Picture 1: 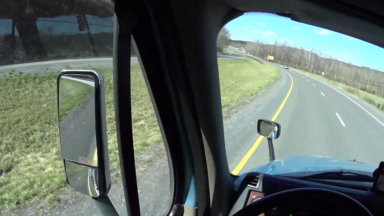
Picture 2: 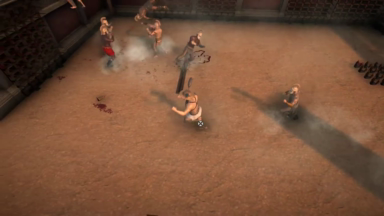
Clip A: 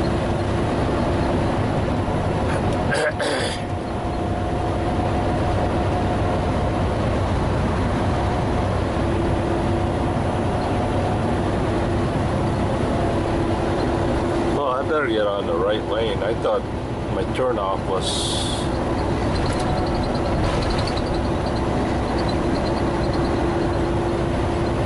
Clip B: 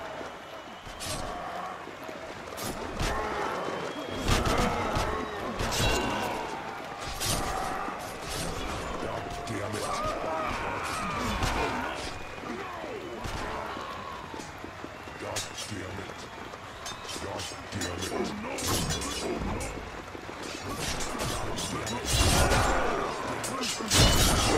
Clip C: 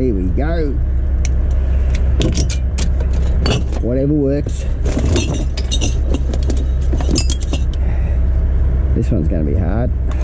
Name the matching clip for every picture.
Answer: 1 A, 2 B